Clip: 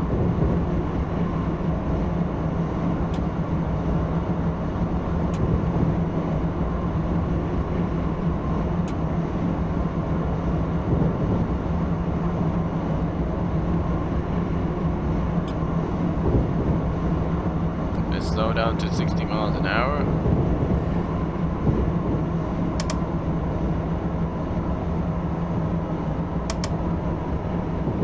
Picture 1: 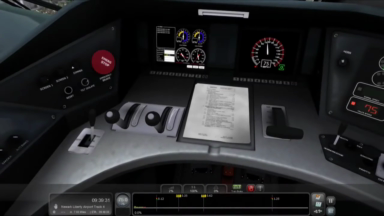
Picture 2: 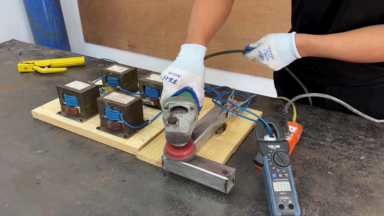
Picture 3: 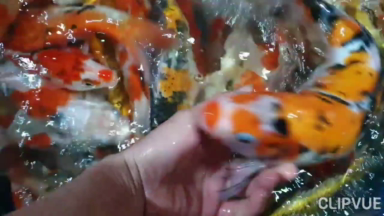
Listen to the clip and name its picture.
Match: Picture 1